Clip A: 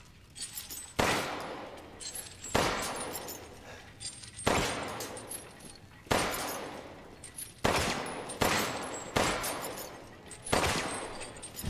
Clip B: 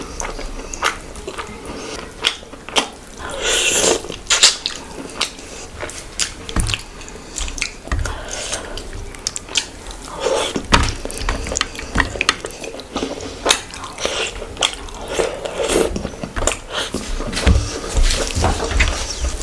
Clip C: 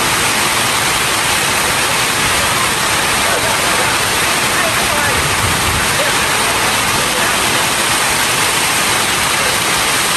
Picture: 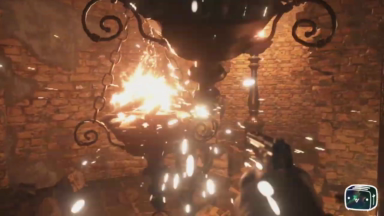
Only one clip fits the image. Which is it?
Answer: A